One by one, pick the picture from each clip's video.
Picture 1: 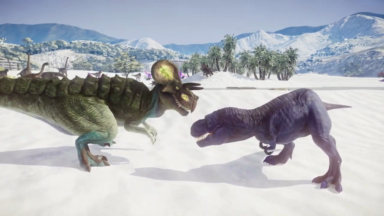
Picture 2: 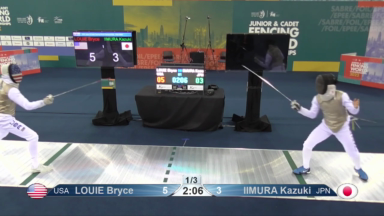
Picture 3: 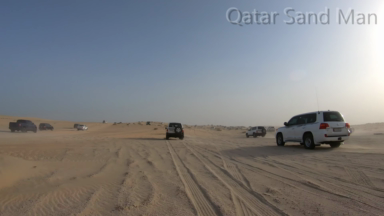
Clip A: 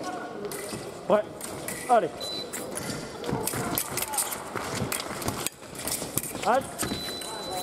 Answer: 2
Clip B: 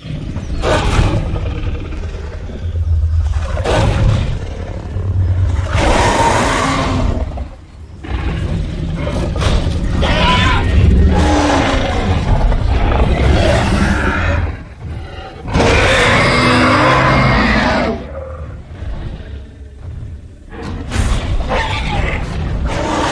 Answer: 1